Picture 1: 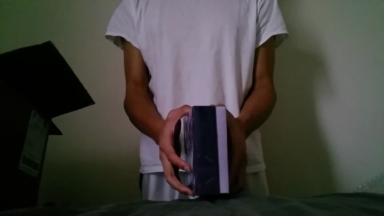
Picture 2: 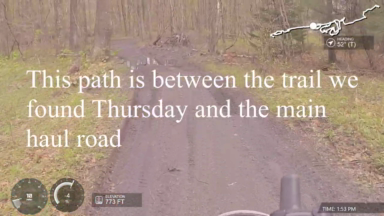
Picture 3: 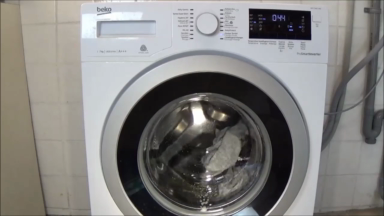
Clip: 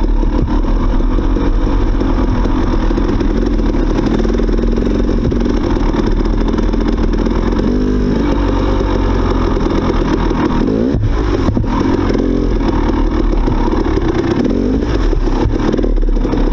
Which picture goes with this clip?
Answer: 2